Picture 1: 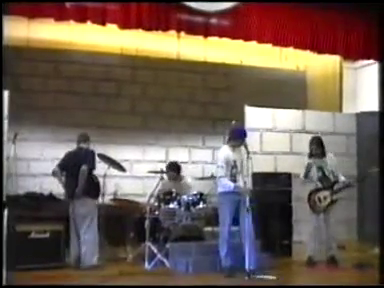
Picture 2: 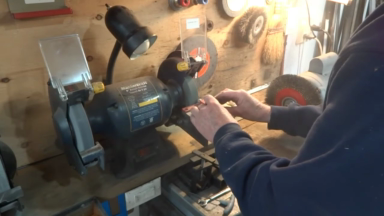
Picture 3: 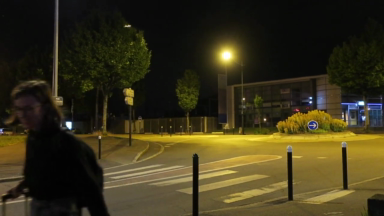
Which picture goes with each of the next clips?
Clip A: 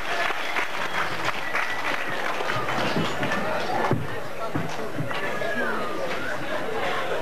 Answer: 1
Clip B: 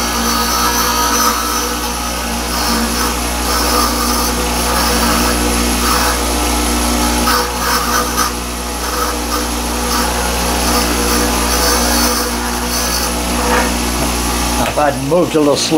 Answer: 2